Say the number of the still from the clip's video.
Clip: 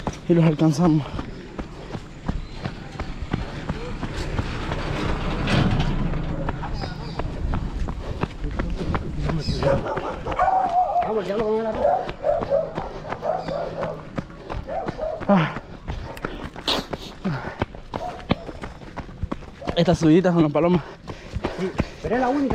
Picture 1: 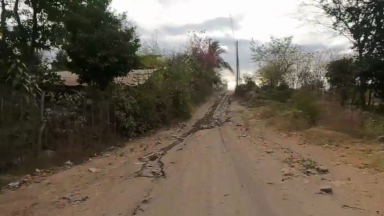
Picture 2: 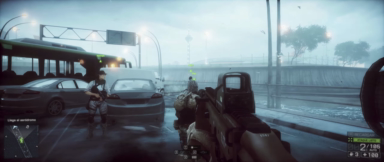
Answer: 1